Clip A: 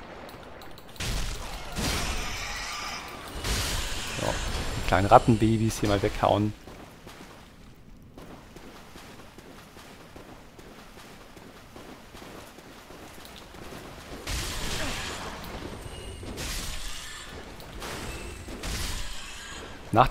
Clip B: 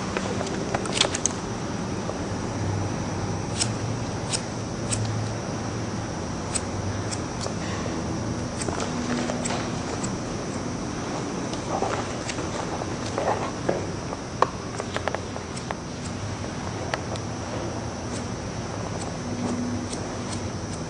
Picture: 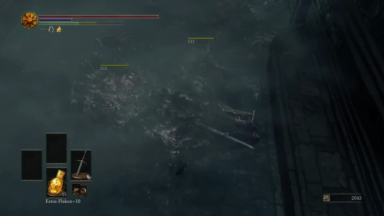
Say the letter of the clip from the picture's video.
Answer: A